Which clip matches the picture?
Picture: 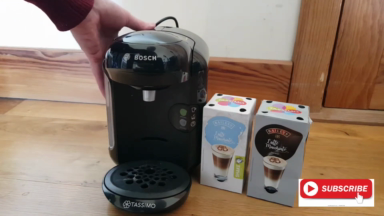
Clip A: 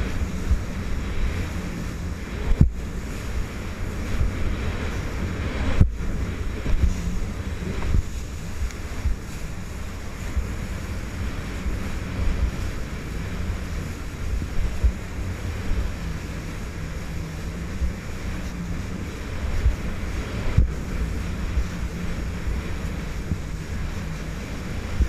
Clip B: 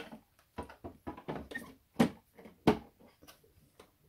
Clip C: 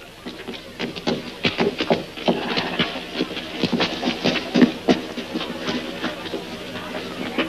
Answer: B